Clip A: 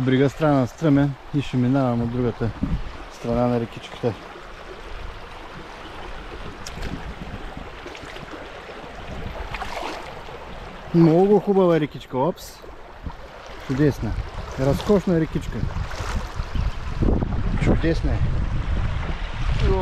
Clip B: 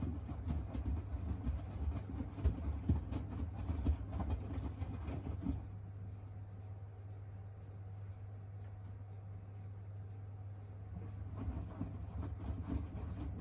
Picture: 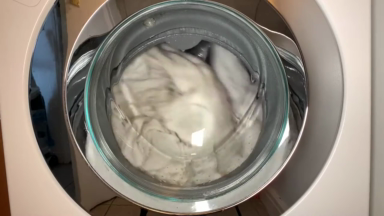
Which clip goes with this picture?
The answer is B